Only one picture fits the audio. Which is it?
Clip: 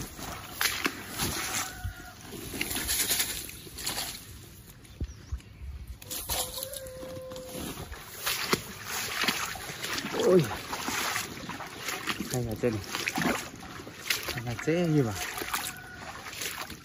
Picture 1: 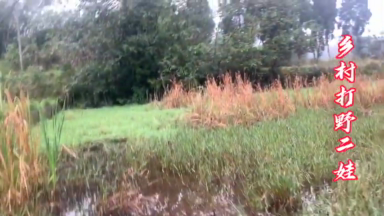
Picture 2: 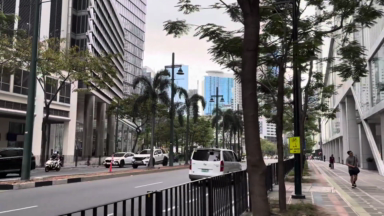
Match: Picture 1